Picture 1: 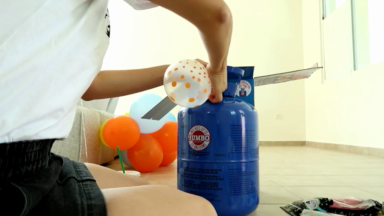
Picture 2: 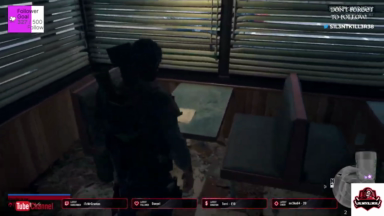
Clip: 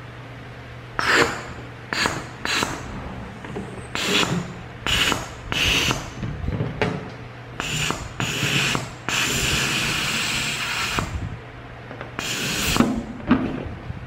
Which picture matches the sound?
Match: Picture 1